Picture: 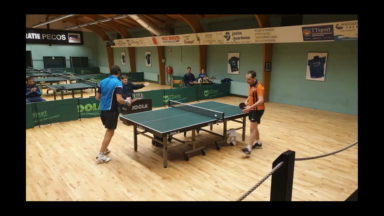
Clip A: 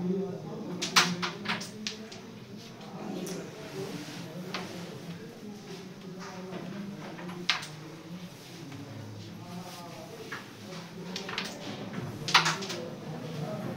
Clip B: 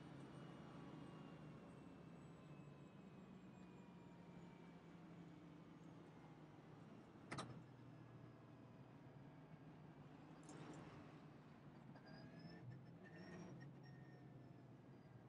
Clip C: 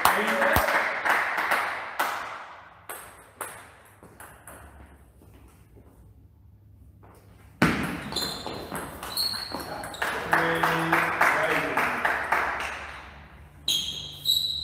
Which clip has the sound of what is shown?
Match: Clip C